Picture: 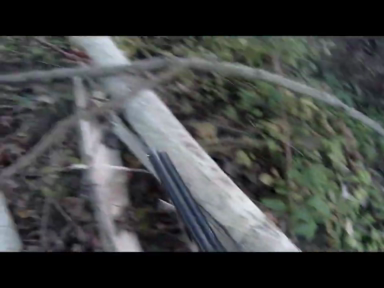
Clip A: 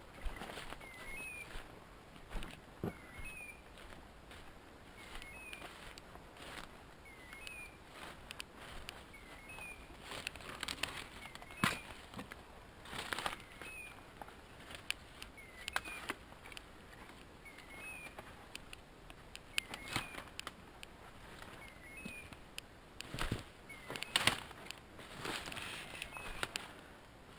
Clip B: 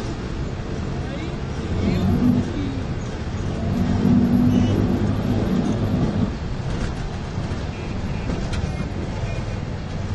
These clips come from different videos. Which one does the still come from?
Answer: A